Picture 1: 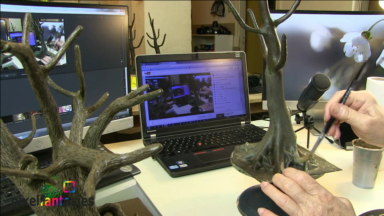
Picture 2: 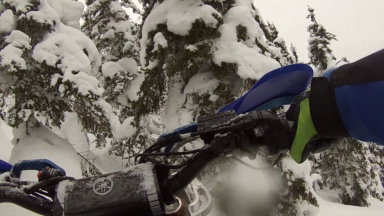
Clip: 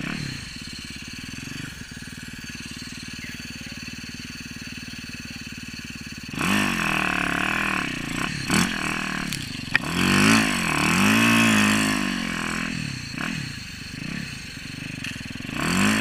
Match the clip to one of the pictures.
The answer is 2